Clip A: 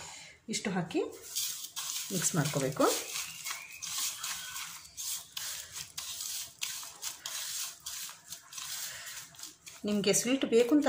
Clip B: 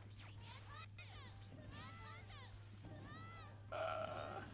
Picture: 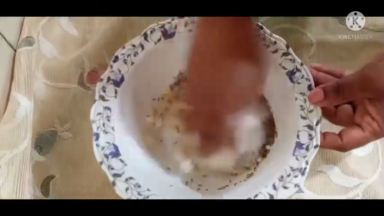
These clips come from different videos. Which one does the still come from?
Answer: A